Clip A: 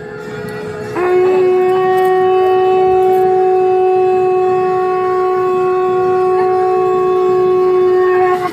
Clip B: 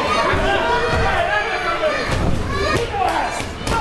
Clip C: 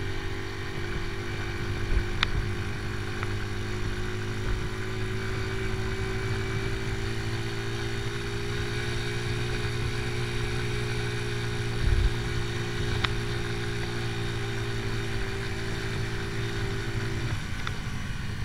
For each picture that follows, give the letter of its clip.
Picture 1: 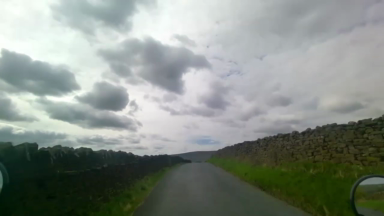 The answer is C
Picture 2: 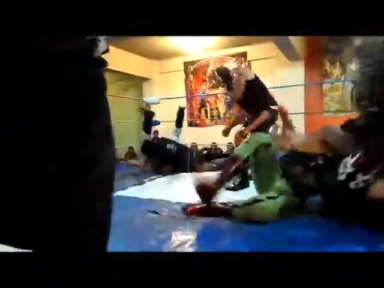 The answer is B